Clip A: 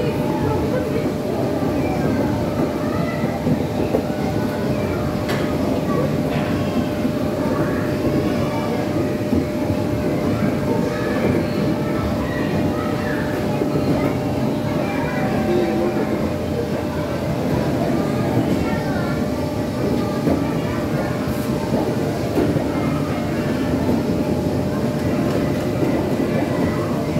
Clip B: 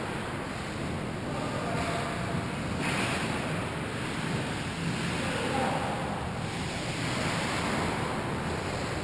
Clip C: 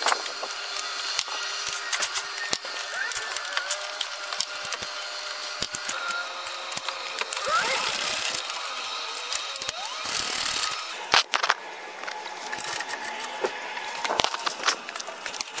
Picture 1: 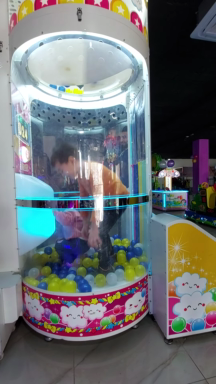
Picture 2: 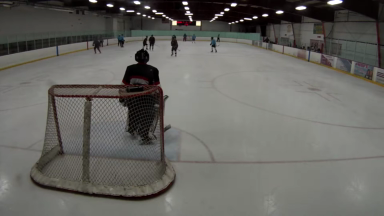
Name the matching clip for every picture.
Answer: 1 A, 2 B